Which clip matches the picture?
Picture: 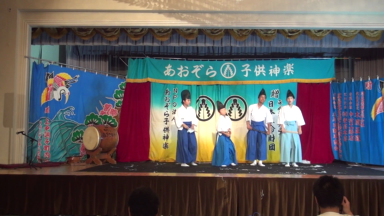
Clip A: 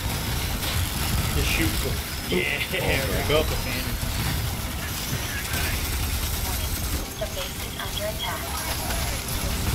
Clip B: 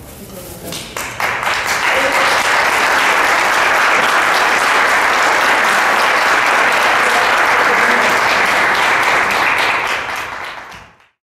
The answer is B